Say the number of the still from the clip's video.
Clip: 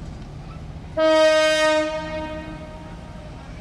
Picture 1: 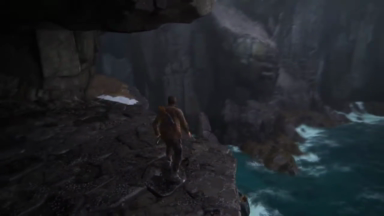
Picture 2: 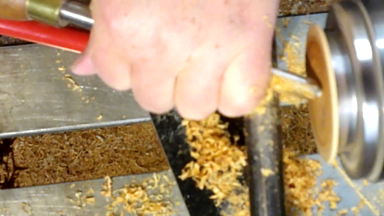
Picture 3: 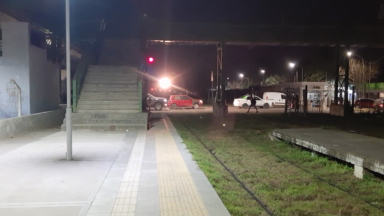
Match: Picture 3